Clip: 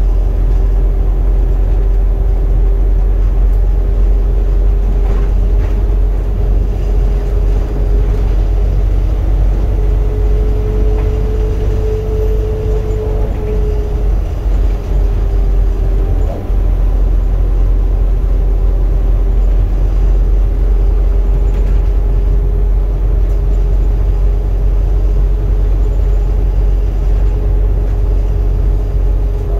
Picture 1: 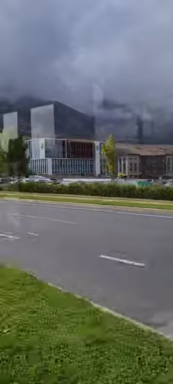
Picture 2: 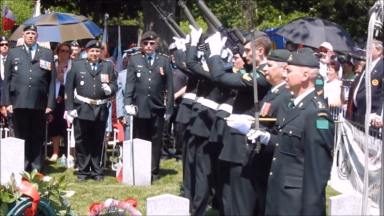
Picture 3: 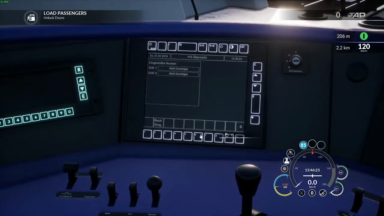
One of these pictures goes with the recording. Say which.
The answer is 1